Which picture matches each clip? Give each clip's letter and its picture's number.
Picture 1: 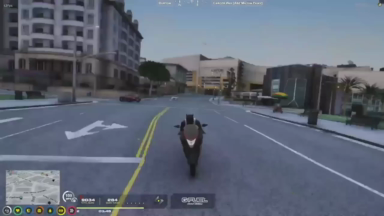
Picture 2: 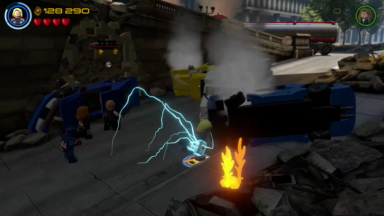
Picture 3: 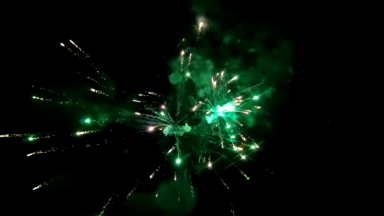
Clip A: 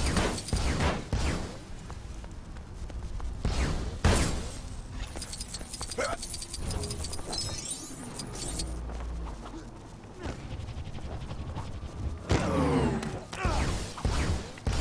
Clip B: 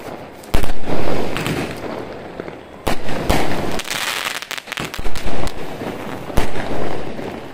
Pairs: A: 2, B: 3